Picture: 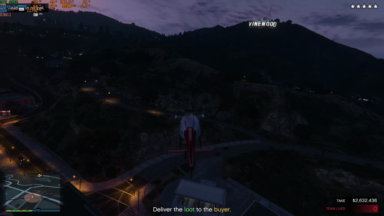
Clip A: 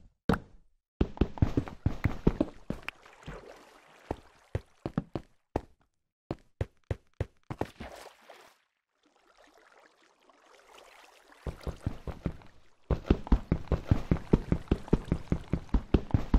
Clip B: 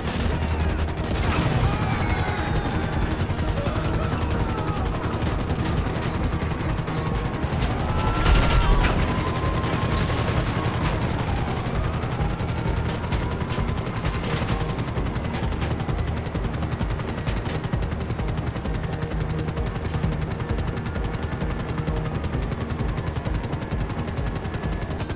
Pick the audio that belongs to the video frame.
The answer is B